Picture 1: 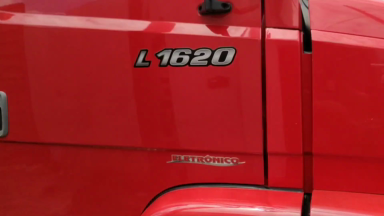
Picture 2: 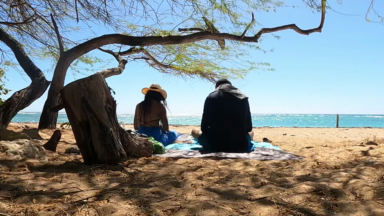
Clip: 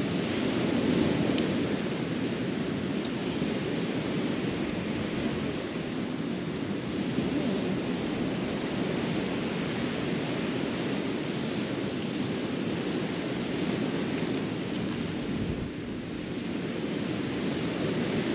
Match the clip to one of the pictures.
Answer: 2